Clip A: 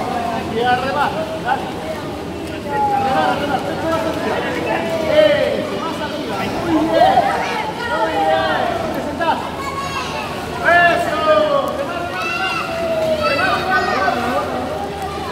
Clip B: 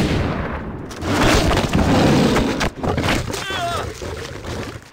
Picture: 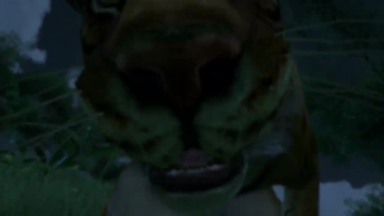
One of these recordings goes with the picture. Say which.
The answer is B